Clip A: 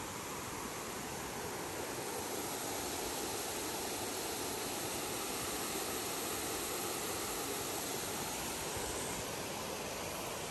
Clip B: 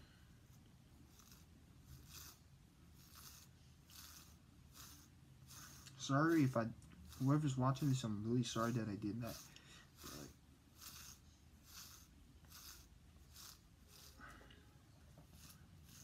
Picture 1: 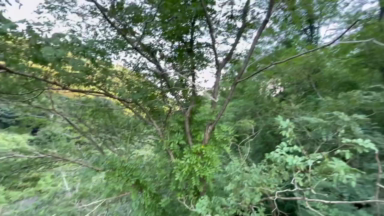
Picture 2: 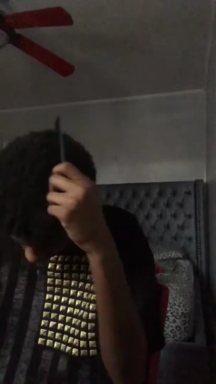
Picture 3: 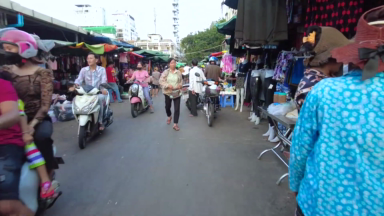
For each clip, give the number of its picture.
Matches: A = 1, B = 2